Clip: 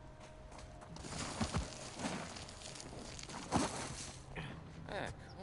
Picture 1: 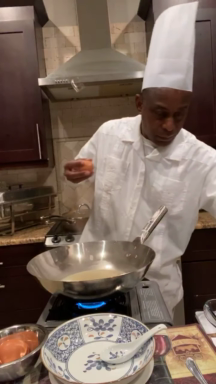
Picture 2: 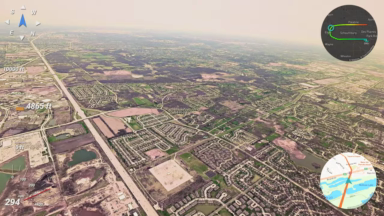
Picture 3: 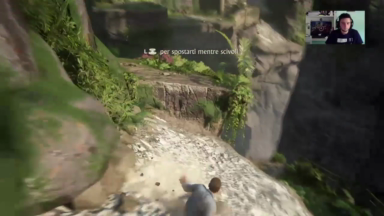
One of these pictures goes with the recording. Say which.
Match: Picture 3